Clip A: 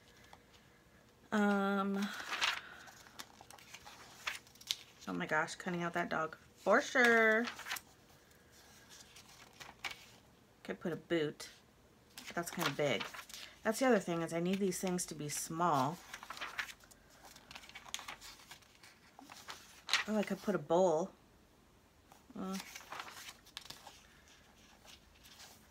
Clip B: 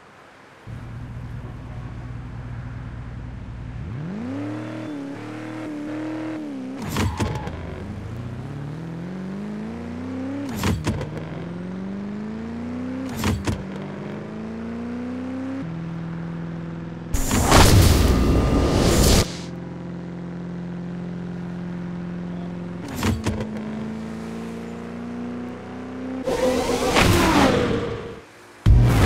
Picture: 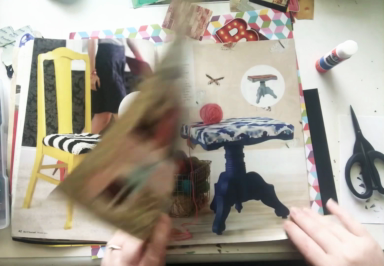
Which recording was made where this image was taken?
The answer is A